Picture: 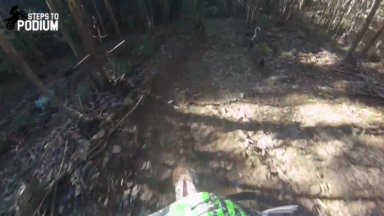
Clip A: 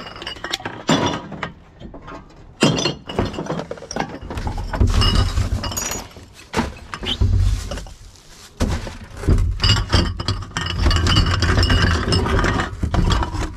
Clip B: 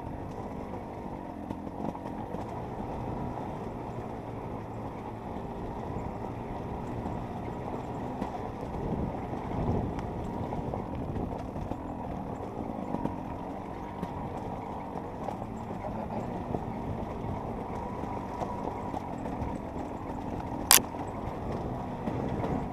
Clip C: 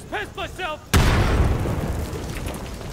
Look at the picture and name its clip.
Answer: B